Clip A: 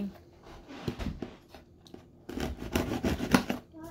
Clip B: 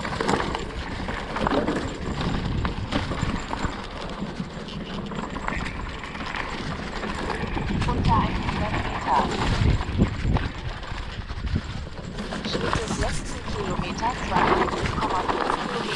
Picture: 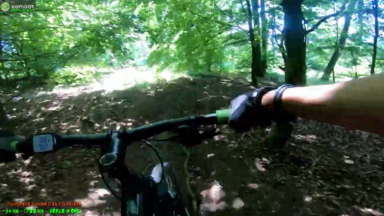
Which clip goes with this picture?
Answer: B